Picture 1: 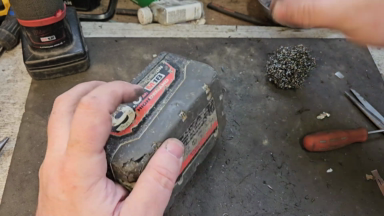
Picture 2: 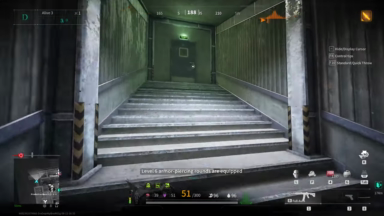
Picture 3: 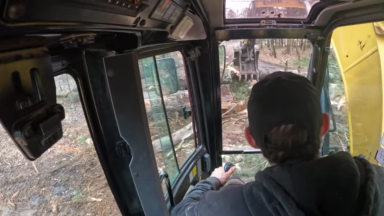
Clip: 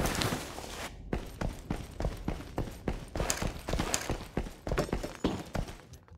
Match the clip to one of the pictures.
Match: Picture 2